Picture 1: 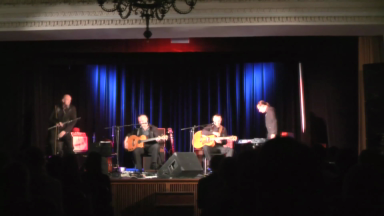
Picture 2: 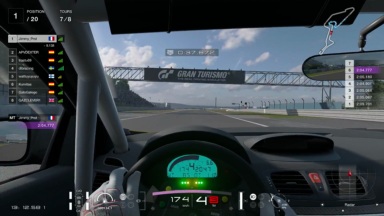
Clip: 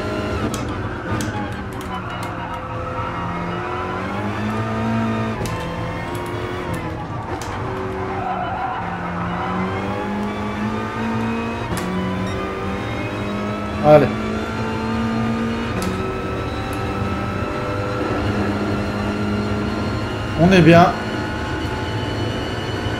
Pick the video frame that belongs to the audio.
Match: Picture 2